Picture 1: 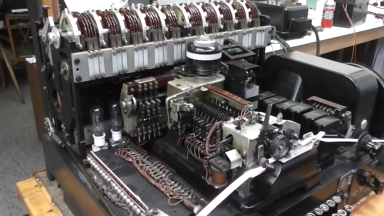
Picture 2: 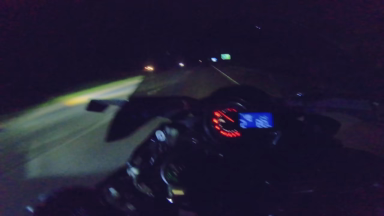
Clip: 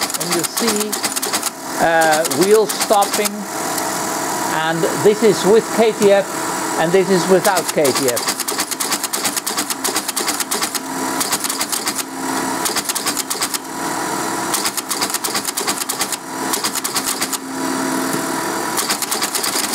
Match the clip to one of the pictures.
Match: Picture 1